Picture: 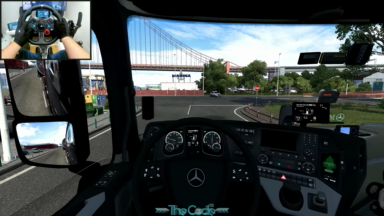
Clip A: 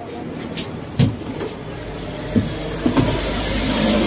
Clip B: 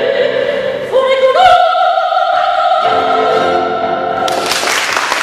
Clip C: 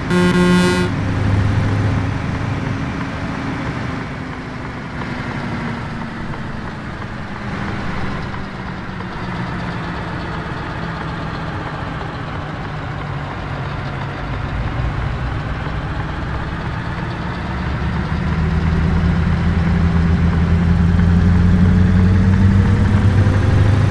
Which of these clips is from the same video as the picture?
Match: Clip C